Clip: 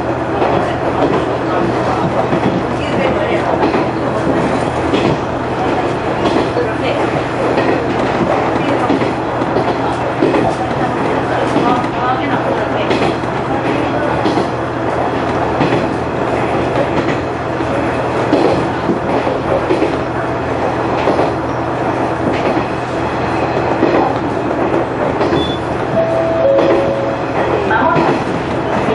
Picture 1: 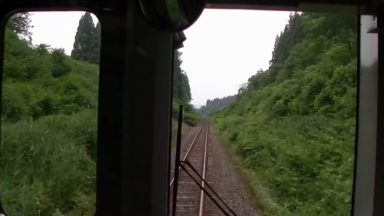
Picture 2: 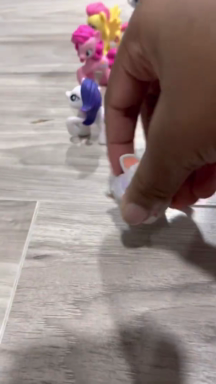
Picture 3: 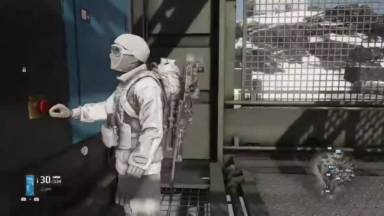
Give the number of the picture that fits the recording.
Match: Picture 1